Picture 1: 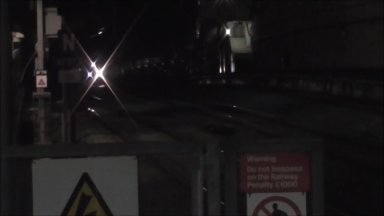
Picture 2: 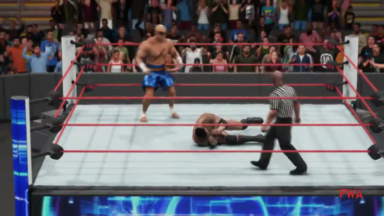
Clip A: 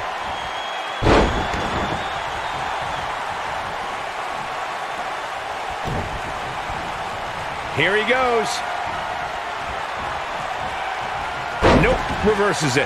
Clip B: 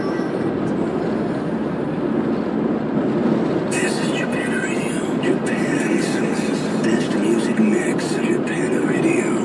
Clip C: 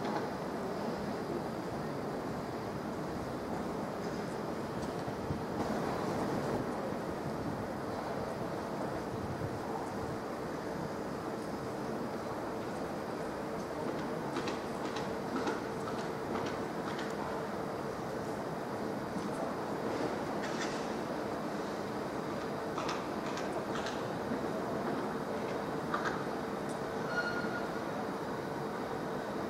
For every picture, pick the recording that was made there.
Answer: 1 C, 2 A